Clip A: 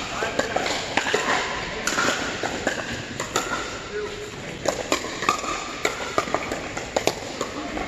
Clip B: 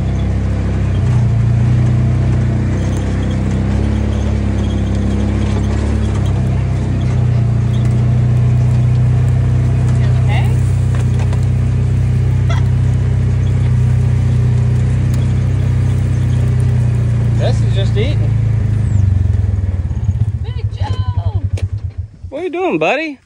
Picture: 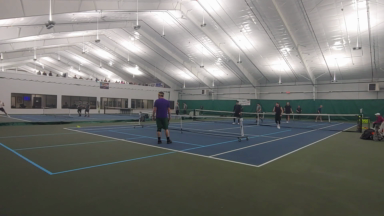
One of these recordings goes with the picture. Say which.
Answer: A